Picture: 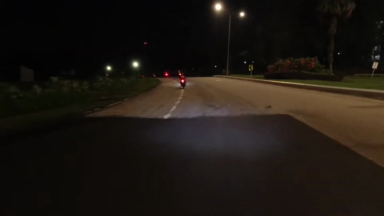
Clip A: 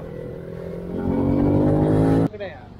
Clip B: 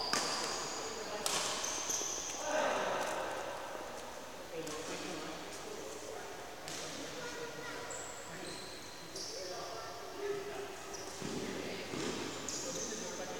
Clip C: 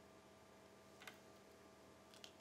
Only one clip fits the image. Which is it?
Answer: A